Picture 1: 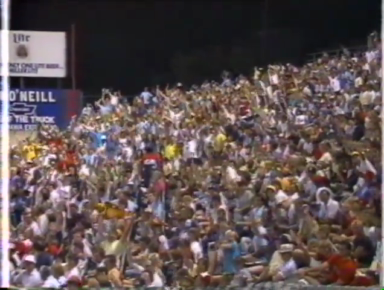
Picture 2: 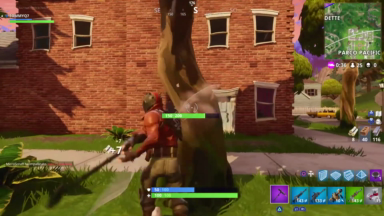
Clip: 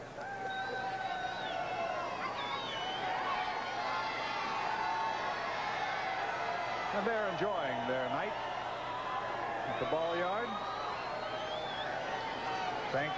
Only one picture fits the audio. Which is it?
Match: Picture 1